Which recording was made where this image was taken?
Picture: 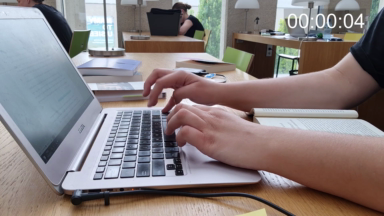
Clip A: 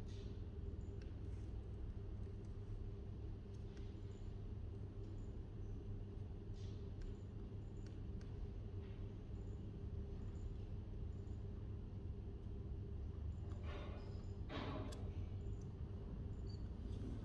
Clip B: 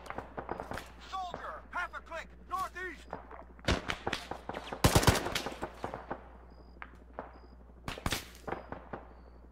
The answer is A